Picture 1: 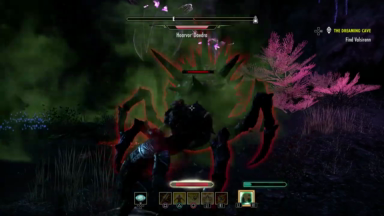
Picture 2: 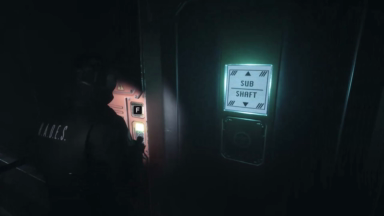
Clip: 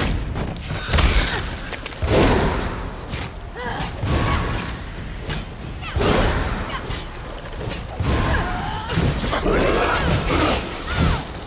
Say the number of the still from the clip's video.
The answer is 1